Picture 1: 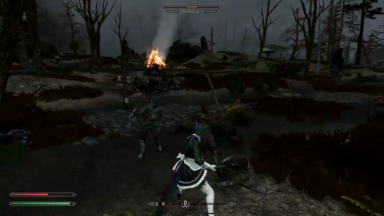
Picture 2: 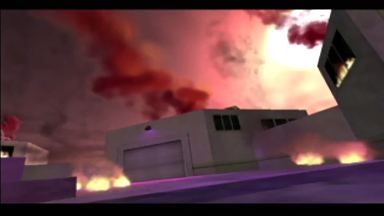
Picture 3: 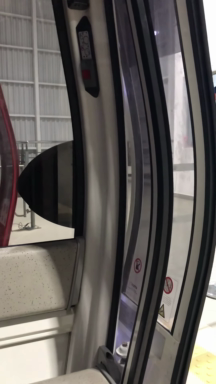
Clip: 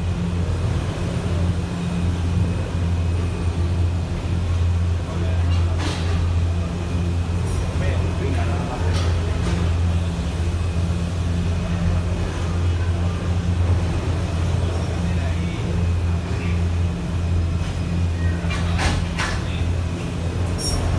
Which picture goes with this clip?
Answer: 3